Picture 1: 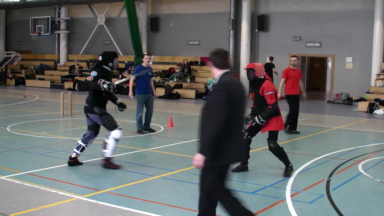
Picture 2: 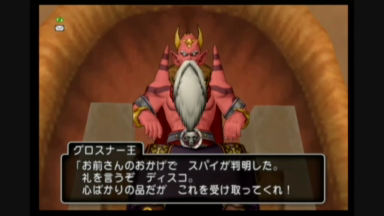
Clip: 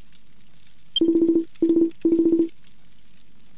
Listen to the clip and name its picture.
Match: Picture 2